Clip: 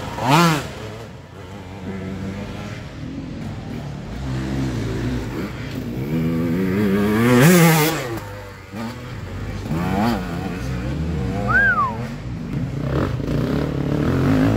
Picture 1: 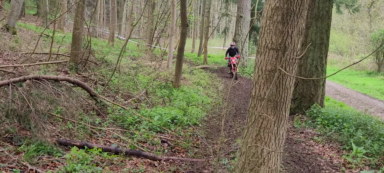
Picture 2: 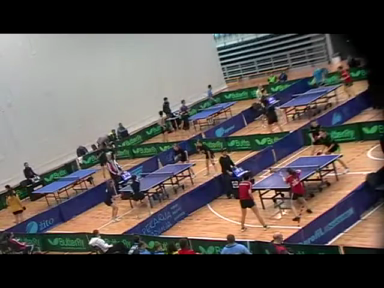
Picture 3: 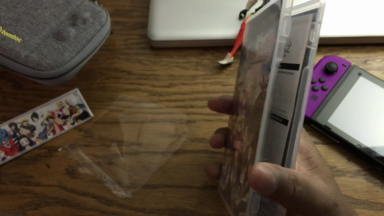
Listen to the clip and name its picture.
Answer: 1